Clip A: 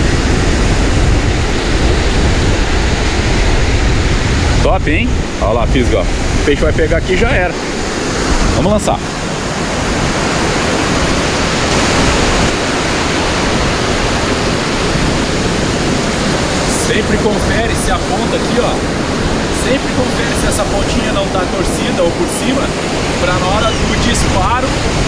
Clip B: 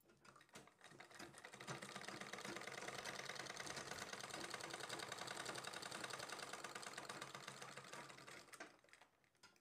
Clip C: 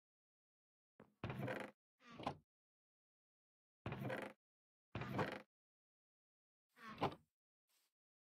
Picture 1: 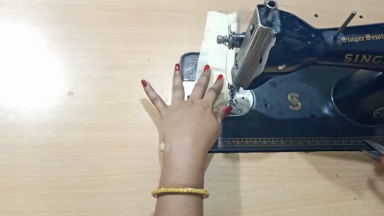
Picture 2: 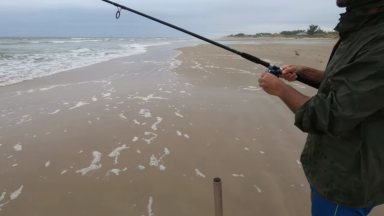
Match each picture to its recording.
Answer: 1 B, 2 A